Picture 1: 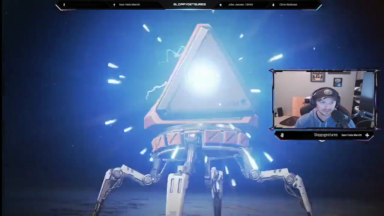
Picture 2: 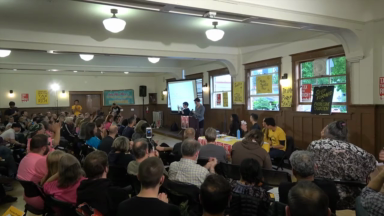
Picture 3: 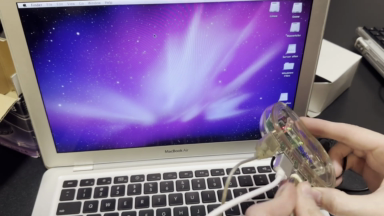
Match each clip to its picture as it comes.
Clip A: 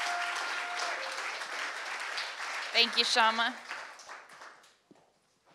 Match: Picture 2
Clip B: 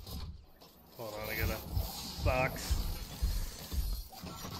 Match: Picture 1